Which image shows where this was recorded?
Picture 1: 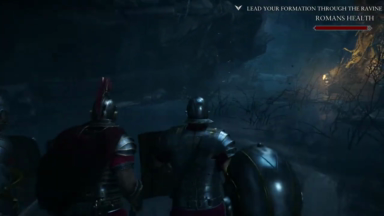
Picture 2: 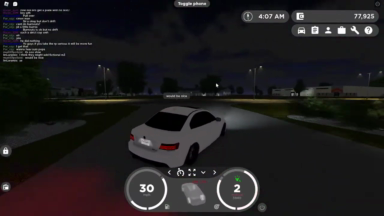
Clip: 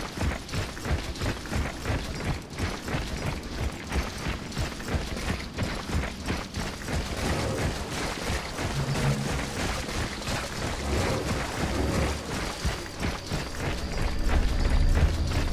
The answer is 1